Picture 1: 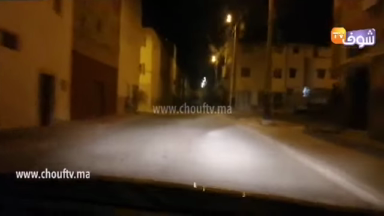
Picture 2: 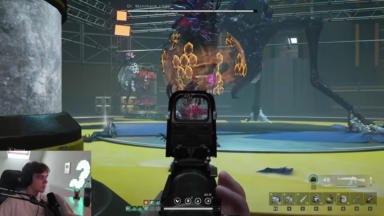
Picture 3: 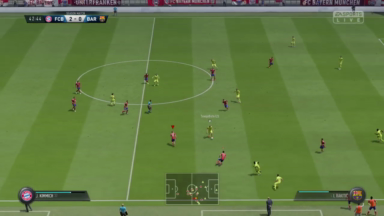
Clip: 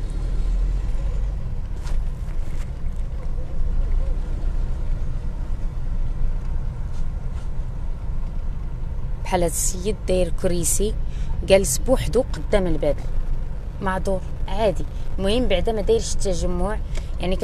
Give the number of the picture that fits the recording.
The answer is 1